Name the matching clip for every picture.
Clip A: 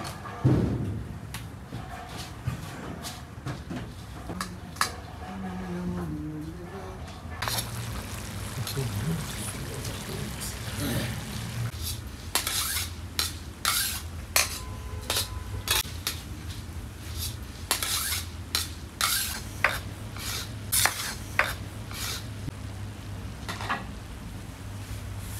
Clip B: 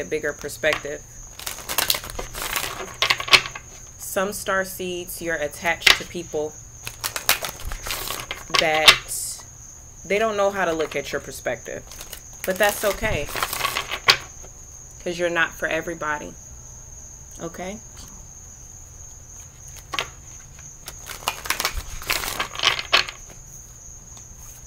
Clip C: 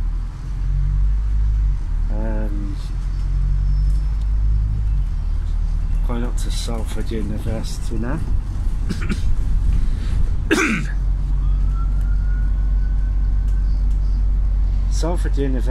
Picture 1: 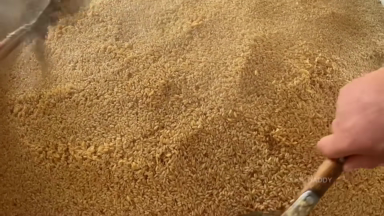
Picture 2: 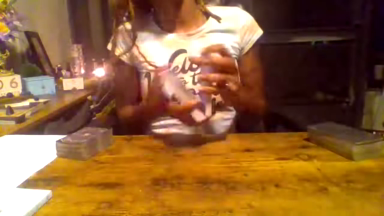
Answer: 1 A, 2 B